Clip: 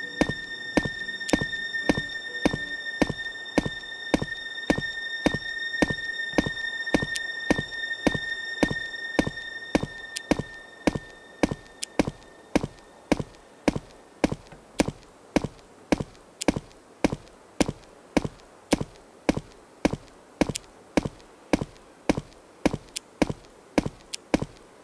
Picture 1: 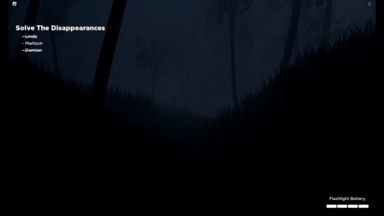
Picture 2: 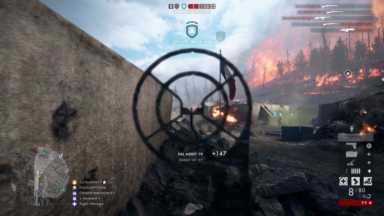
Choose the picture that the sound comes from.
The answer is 1